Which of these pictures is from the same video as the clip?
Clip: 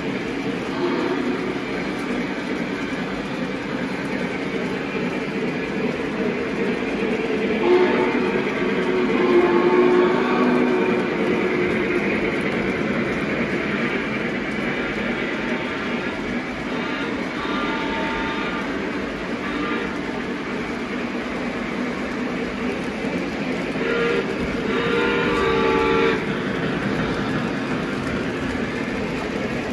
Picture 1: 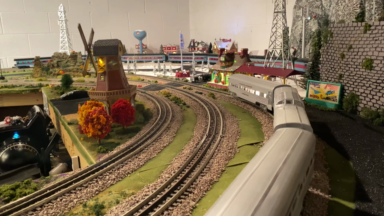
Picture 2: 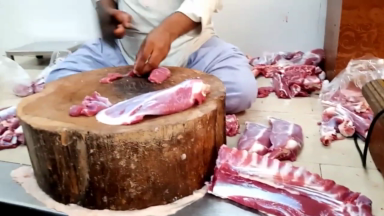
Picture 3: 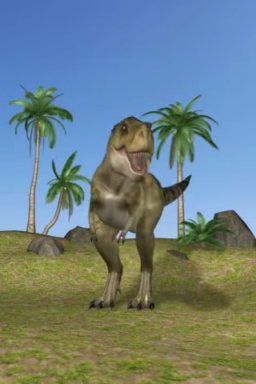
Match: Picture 1